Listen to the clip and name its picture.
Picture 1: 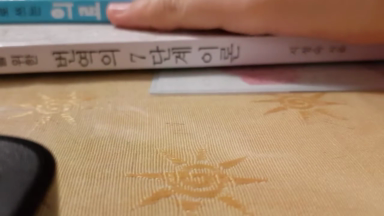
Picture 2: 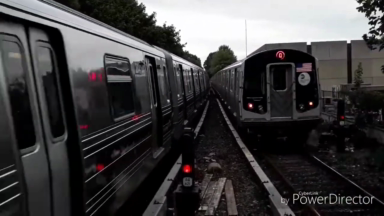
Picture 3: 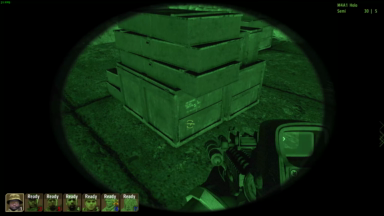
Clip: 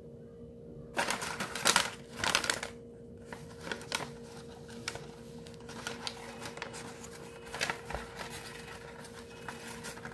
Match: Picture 1